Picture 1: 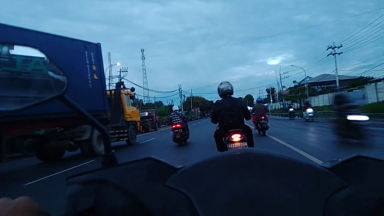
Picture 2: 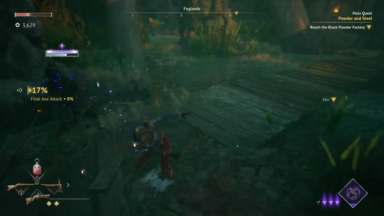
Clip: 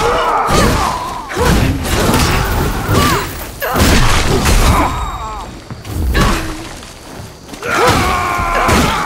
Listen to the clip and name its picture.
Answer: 2